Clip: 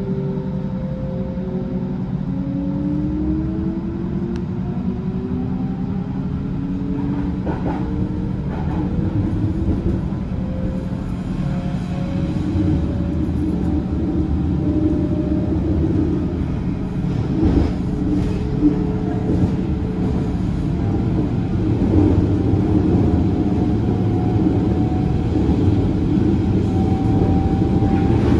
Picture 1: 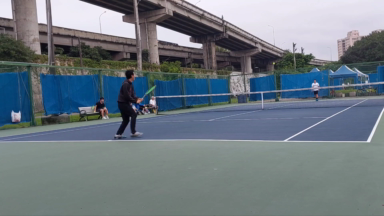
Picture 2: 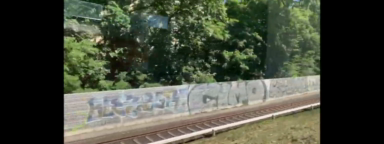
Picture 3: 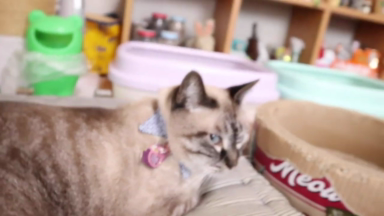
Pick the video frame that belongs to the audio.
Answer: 2